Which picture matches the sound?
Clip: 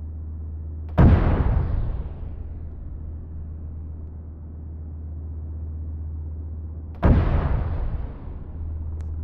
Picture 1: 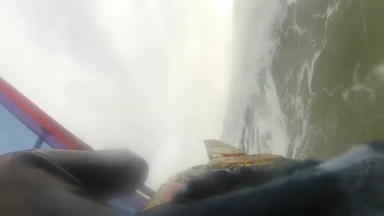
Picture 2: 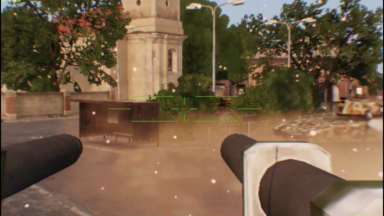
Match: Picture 2